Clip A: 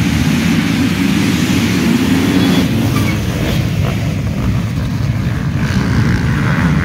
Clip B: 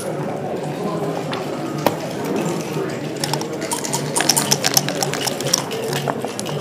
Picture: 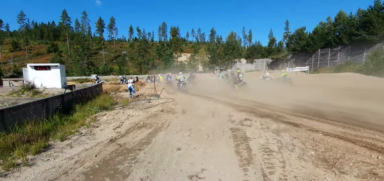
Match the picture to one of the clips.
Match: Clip A